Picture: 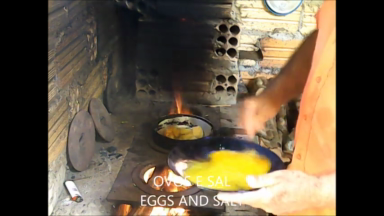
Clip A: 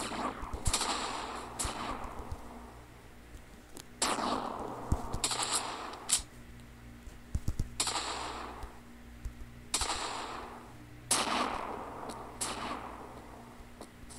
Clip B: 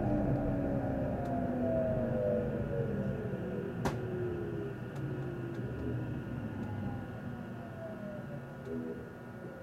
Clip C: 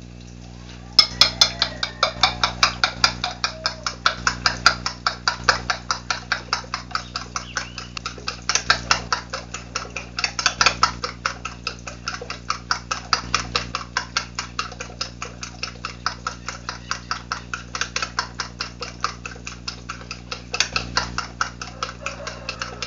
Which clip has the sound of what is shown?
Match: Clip C